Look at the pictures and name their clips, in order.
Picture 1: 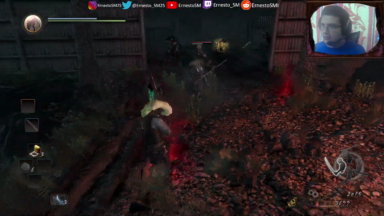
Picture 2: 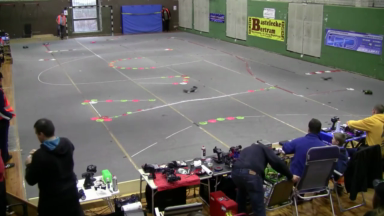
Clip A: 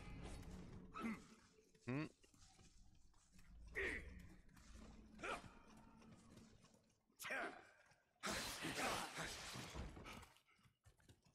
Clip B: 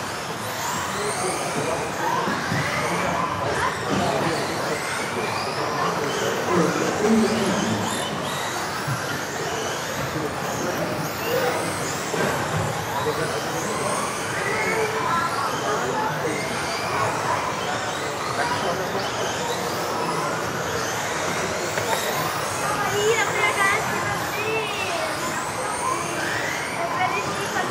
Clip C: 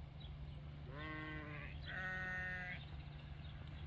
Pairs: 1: A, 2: B